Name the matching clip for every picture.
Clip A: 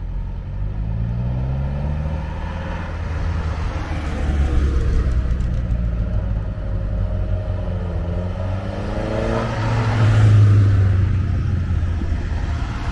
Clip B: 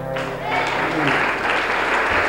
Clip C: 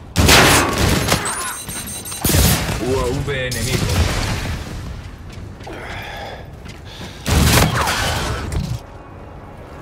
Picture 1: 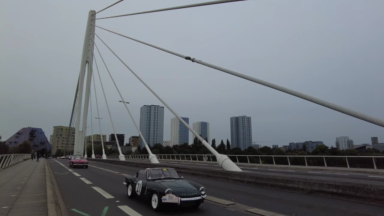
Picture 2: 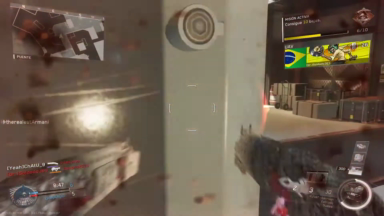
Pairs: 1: A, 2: C